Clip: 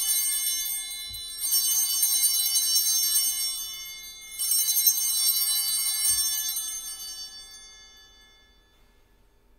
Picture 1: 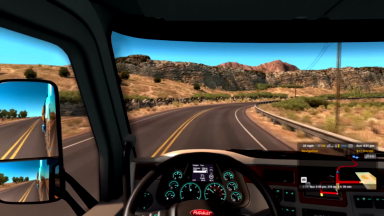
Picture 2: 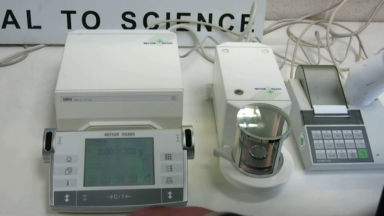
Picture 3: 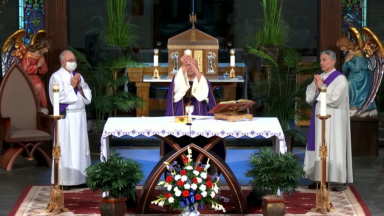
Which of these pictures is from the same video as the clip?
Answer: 3